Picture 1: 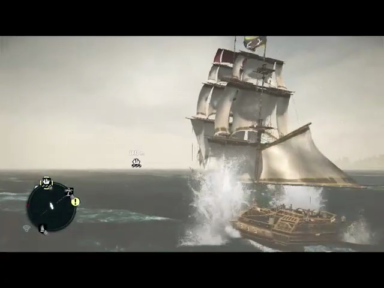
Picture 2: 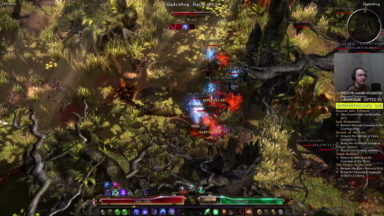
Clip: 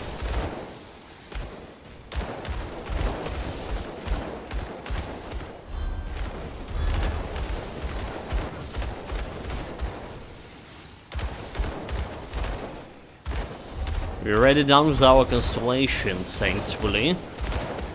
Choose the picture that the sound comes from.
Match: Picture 2